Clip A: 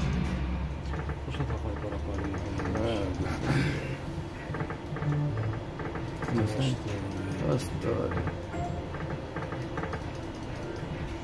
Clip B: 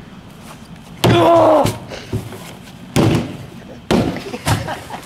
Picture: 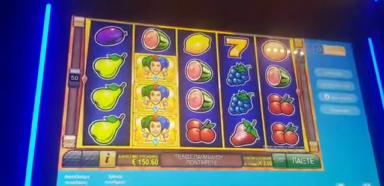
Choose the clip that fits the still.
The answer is A